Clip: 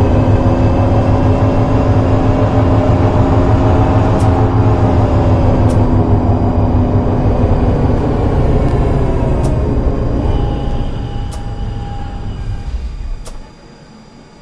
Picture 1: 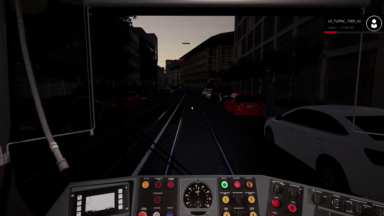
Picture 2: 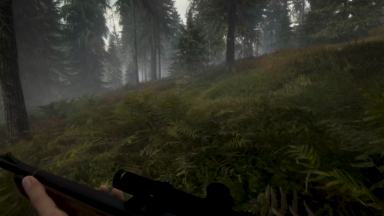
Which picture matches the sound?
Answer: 1